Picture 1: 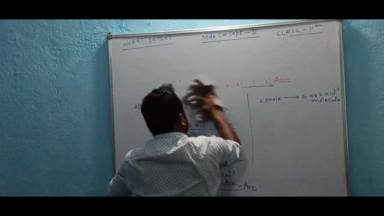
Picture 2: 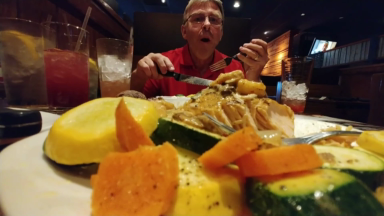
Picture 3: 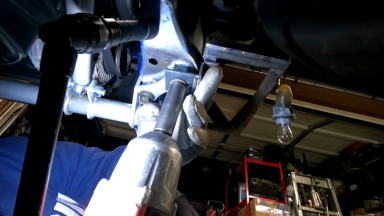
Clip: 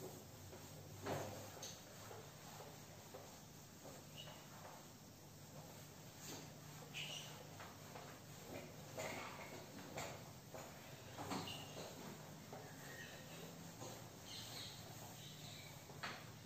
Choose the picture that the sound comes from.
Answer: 1